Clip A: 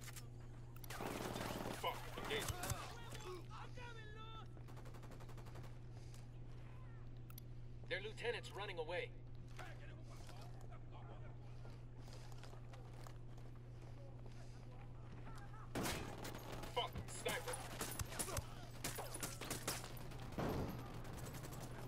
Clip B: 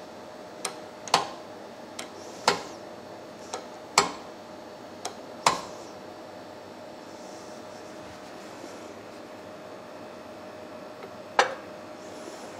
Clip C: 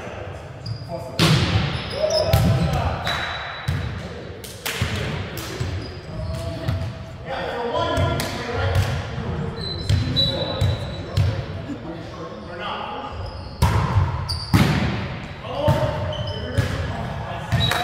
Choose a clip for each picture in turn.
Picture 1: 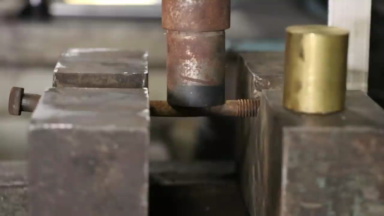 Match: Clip B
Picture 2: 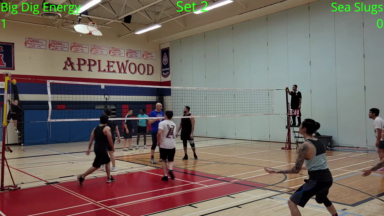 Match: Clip C